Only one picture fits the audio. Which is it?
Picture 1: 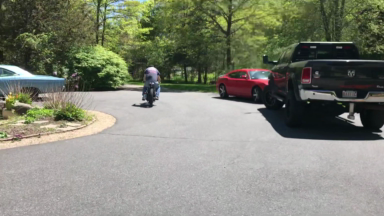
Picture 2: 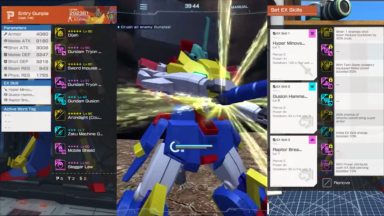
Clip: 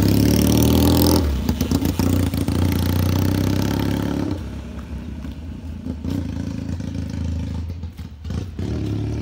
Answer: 1